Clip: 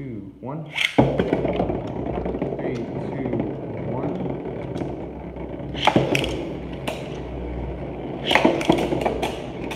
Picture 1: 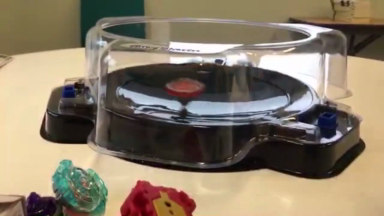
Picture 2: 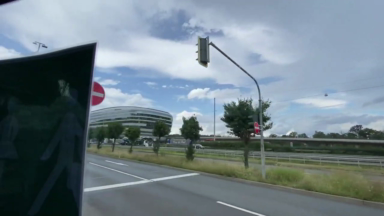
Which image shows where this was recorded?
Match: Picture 1